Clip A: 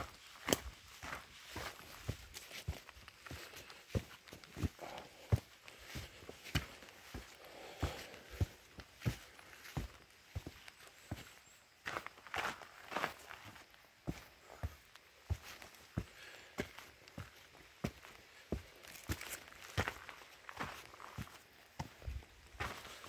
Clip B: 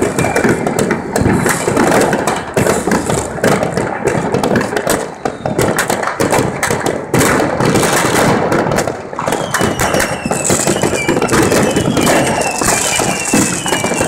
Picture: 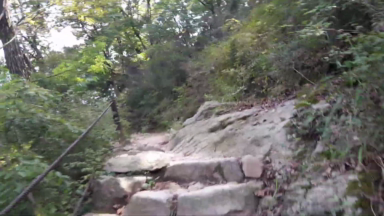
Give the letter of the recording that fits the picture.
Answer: A